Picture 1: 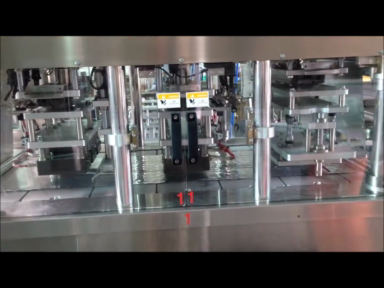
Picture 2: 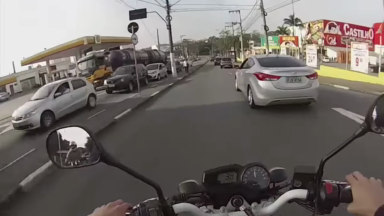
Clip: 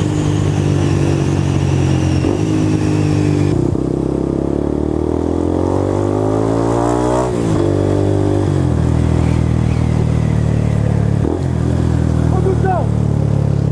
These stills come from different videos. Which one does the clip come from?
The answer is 2